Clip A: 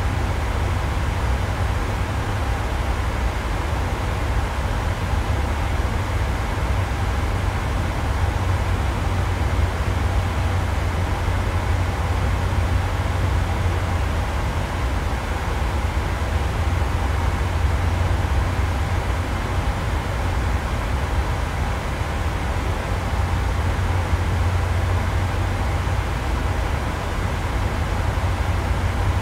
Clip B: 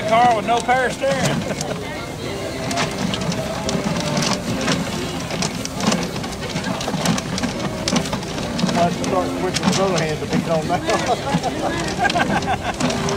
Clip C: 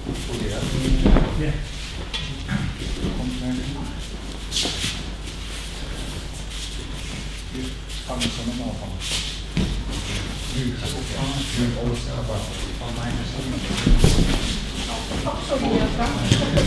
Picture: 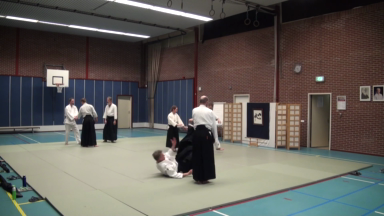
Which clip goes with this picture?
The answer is C